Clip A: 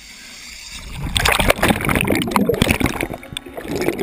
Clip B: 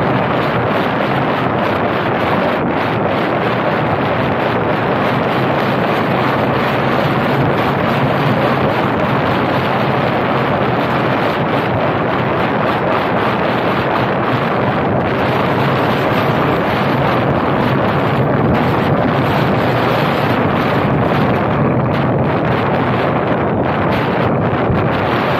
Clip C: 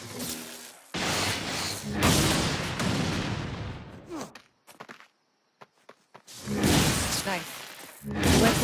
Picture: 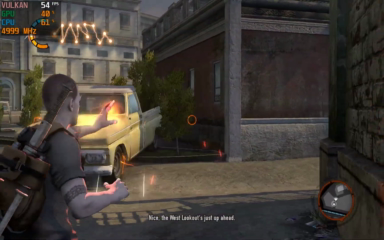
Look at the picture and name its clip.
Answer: C